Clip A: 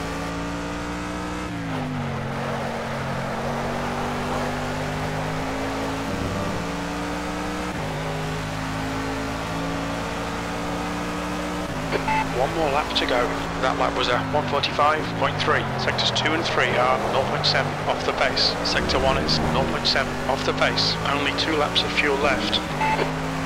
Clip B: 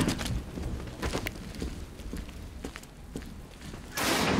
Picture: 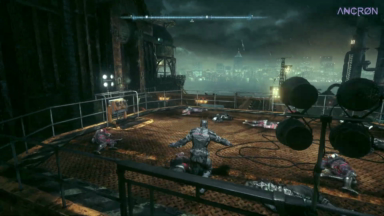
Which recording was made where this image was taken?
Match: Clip B